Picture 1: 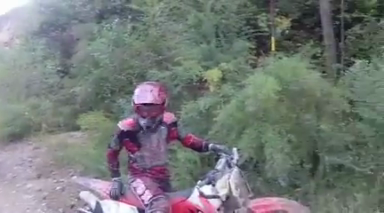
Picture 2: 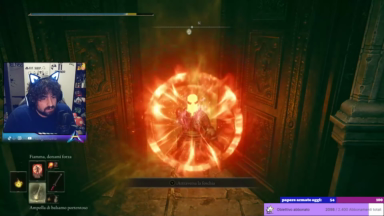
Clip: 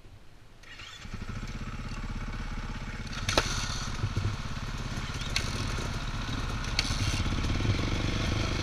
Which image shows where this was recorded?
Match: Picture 1